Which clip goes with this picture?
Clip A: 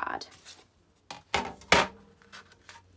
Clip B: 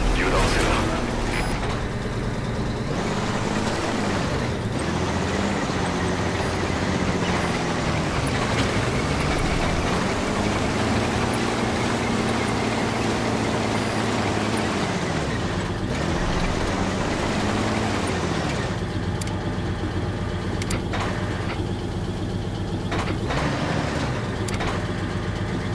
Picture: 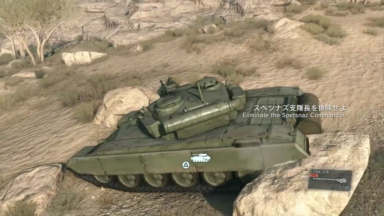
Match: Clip B